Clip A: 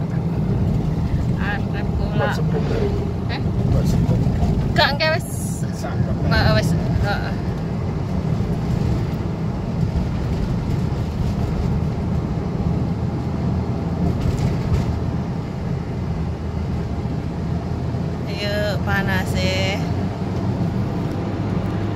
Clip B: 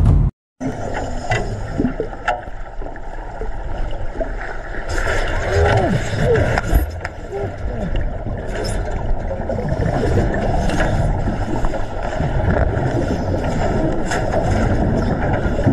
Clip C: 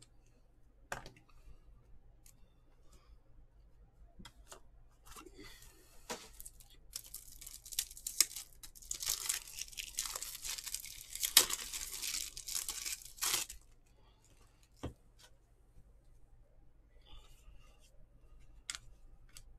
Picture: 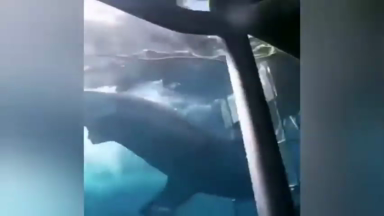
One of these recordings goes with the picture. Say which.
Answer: B